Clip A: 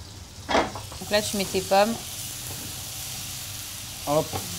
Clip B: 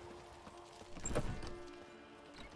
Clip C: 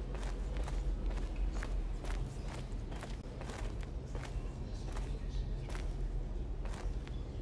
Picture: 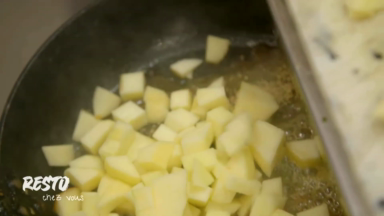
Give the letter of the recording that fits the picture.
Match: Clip A